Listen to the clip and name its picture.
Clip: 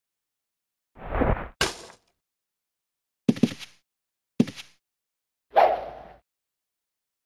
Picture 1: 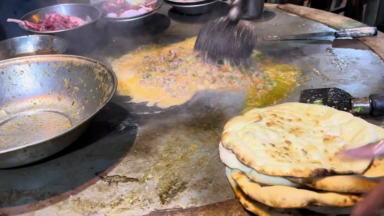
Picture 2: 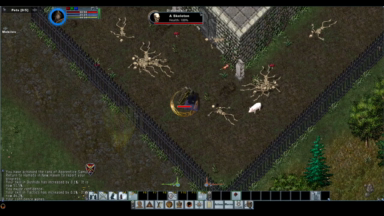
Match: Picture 2